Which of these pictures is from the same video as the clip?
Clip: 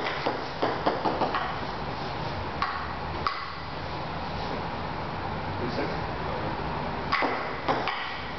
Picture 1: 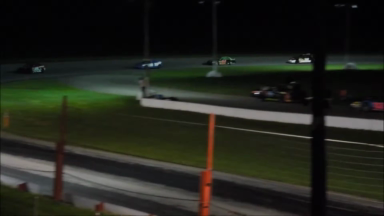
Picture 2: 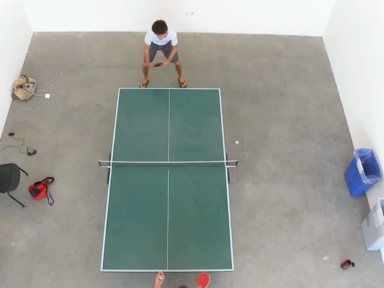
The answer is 2